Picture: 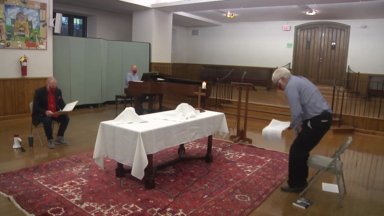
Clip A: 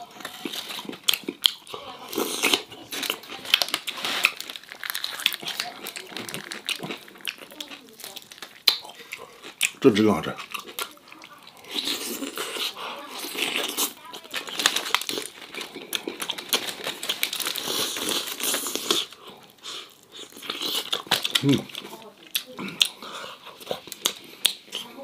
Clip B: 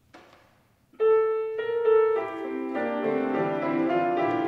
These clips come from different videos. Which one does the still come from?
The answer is B